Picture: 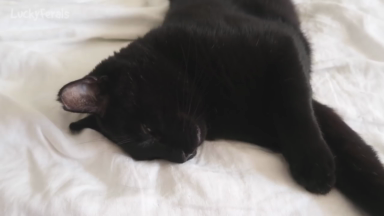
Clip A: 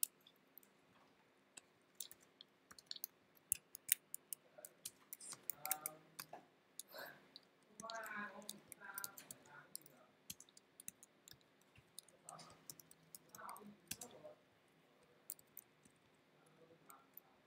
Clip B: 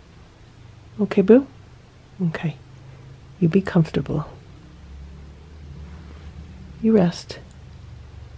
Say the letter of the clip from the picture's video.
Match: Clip B